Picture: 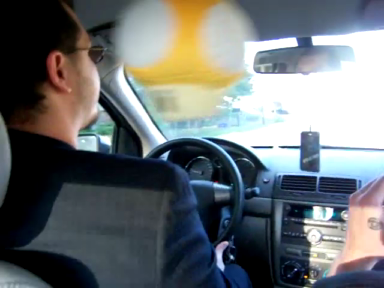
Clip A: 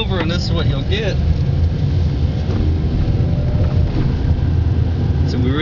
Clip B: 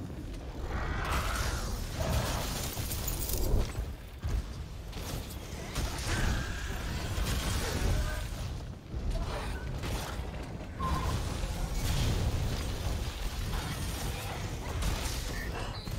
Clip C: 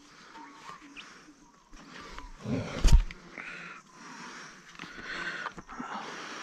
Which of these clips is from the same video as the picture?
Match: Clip A